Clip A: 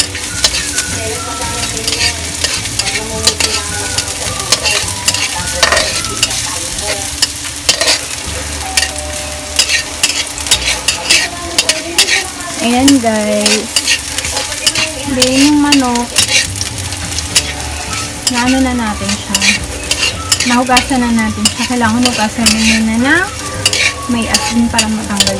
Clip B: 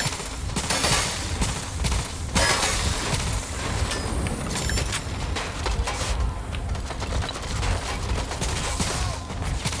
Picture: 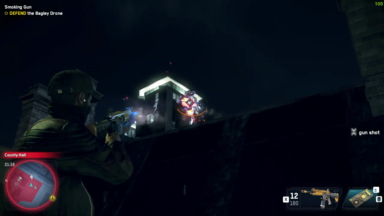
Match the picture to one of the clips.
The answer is B